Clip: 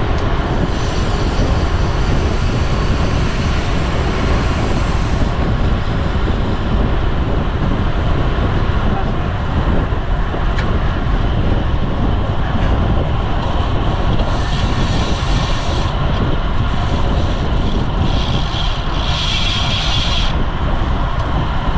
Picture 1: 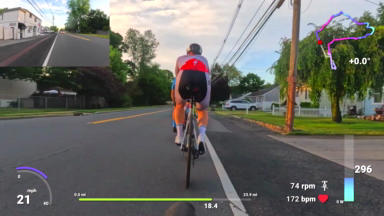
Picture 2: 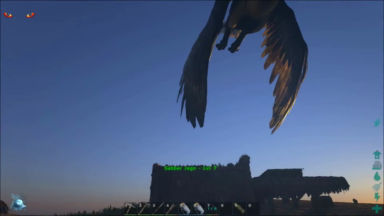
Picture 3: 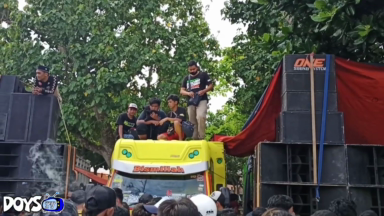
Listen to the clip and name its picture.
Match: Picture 1